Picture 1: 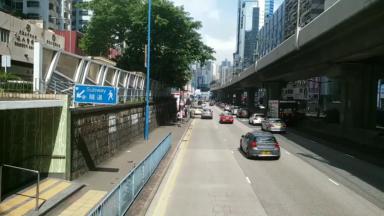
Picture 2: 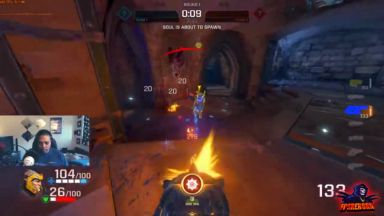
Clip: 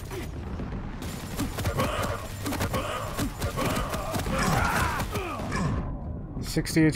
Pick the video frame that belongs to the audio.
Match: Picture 2